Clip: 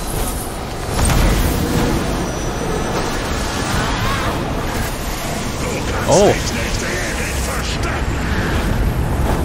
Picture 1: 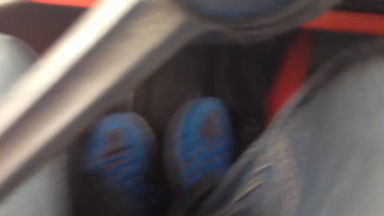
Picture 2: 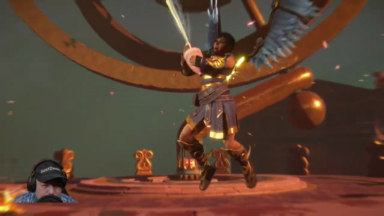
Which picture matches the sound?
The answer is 2